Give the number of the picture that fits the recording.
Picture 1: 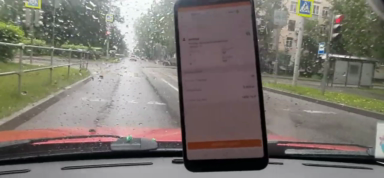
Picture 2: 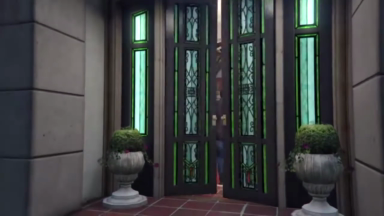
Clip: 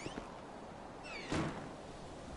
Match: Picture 2